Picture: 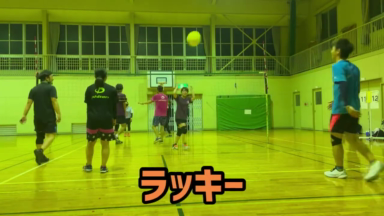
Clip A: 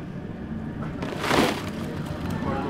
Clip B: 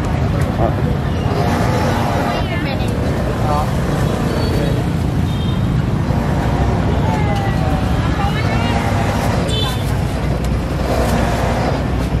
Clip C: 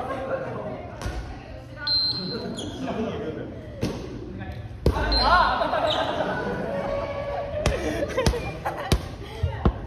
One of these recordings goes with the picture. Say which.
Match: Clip C